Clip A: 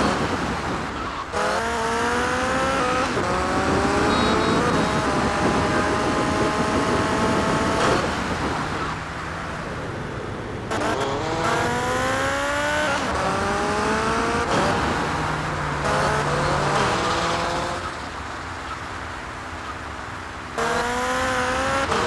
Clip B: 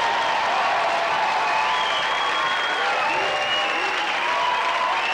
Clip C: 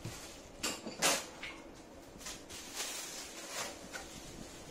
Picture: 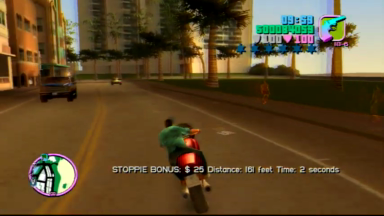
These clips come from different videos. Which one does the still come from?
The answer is A